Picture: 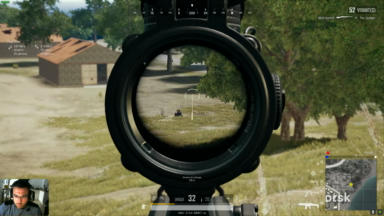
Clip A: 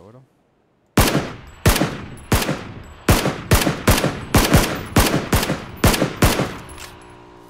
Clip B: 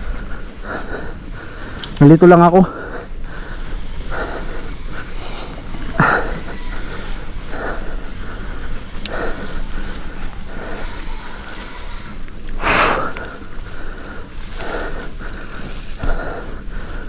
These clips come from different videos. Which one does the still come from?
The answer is A